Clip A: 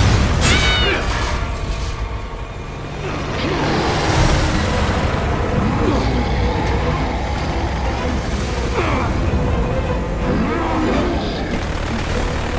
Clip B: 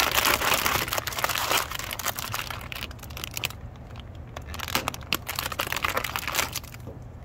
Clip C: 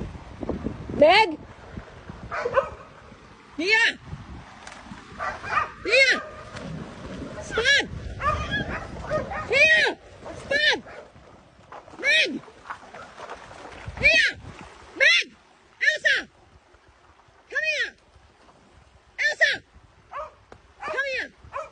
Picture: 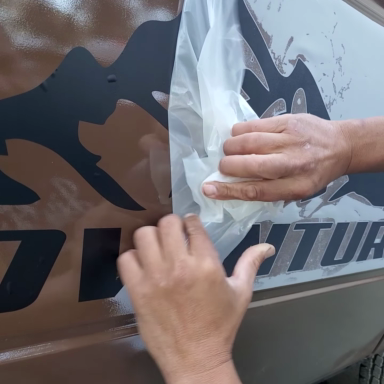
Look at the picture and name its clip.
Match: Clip B